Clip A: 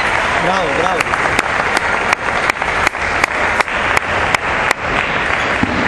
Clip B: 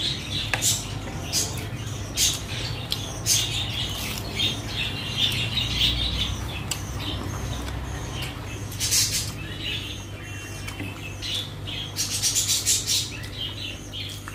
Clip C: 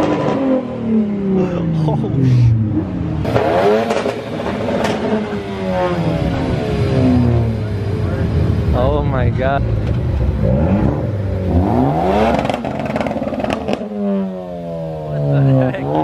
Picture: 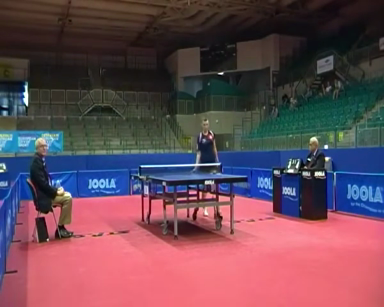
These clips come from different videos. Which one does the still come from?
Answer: A